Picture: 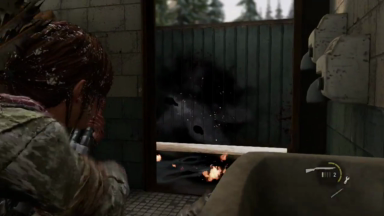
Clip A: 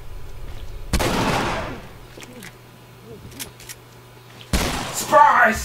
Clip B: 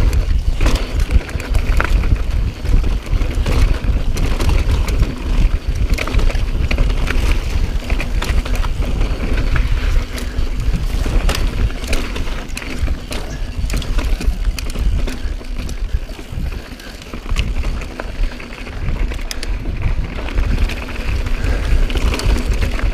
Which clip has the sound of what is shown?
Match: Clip A